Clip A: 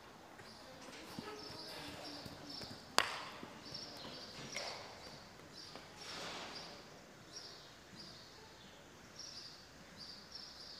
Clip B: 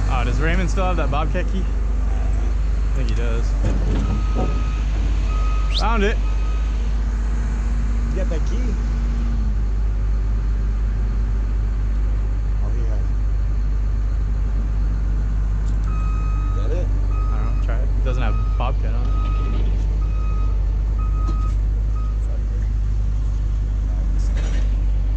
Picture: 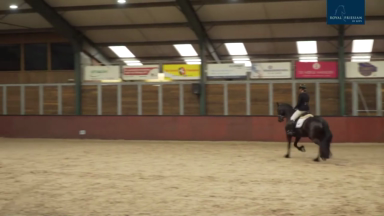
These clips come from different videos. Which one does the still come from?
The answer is A